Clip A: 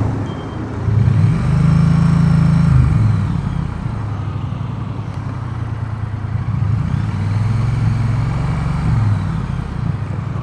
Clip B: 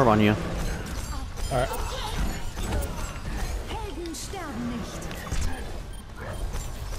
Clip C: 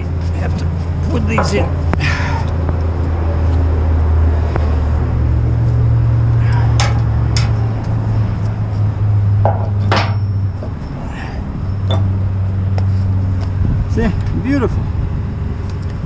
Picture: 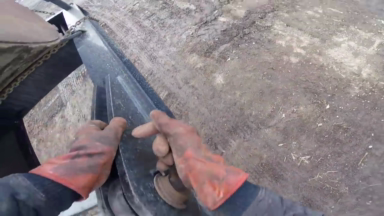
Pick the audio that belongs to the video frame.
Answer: C